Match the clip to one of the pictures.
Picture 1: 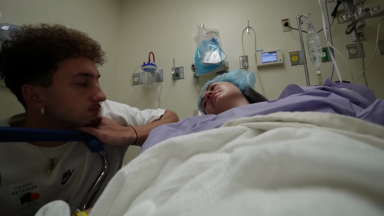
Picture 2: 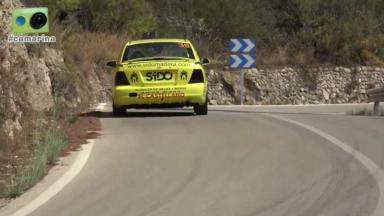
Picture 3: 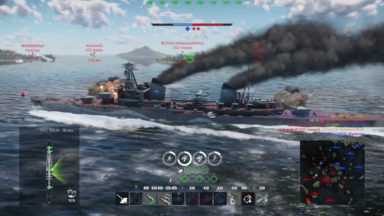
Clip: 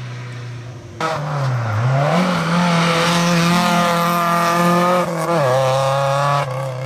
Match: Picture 2